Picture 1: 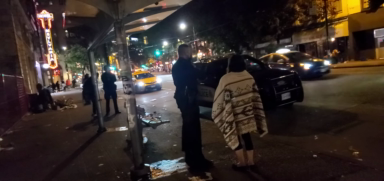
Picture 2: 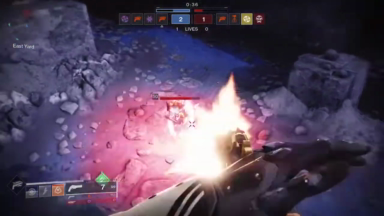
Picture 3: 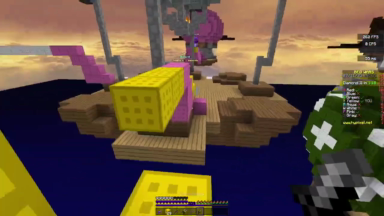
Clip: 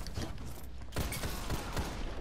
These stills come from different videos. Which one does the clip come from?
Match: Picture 2